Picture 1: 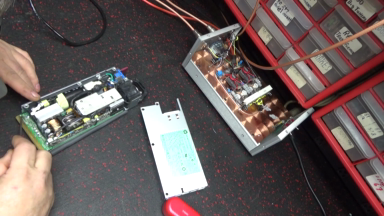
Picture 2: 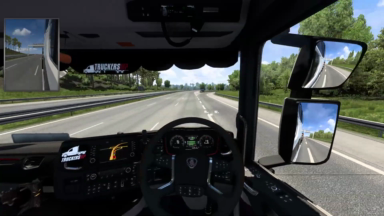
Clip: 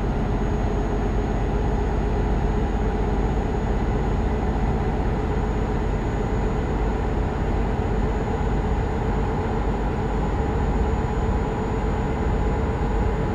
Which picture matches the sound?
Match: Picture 2